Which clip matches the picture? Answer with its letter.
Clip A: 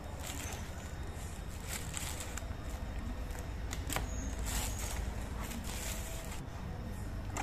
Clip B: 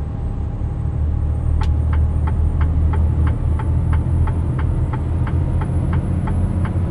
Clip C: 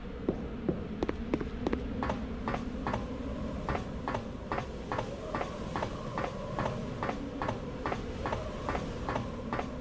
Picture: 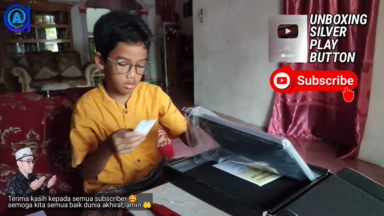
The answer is A